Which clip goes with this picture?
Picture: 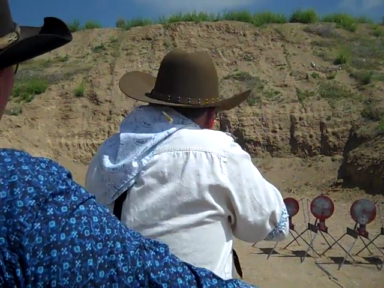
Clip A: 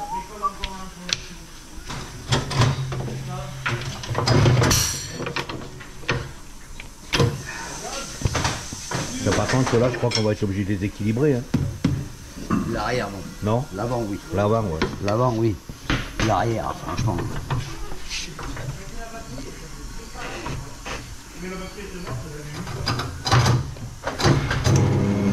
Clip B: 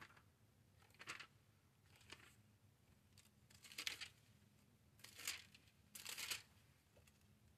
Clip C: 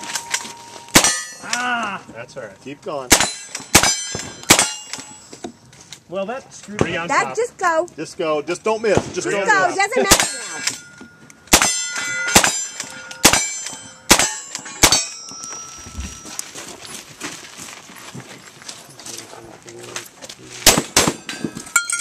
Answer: C